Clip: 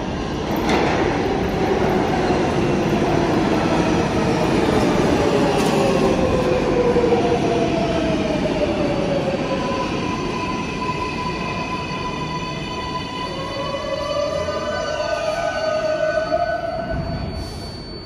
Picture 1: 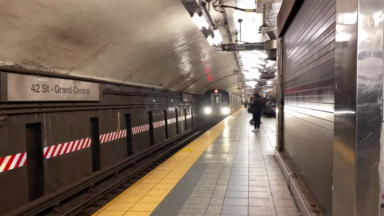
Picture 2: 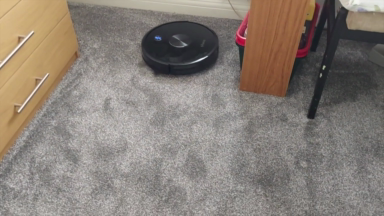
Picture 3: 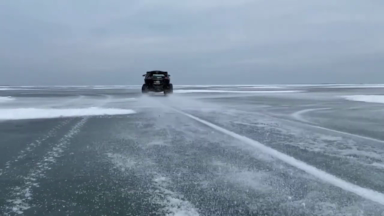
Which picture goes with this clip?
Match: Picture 1